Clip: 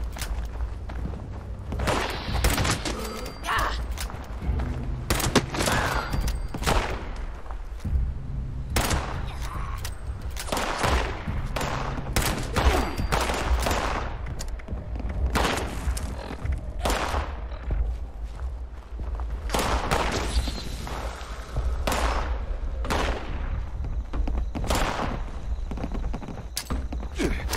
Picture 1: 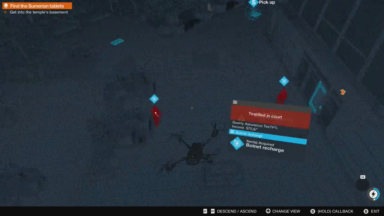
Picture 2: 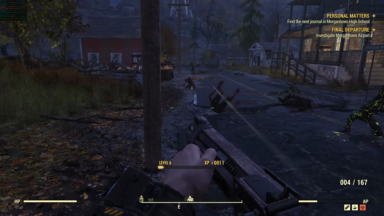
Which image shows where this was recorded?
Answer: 2